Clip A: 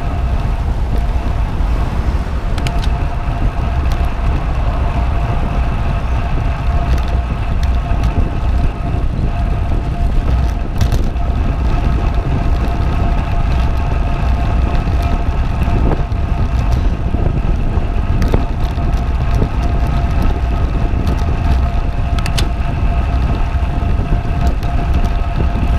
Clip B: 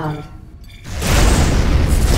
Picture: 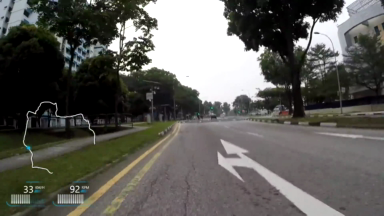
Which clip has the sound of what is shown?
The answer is A